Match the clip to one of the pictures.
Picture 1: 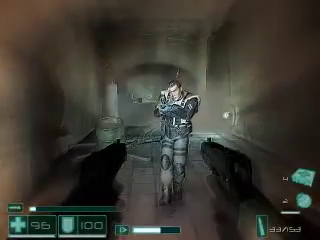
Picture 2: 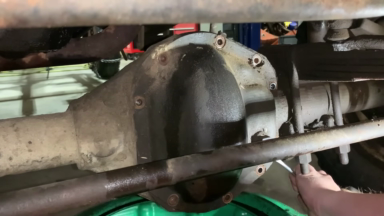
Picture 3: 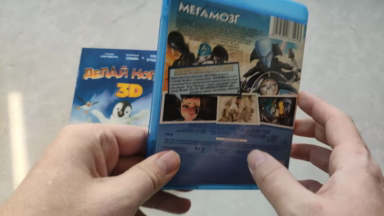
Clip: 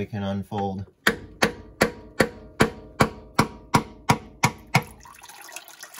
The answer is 2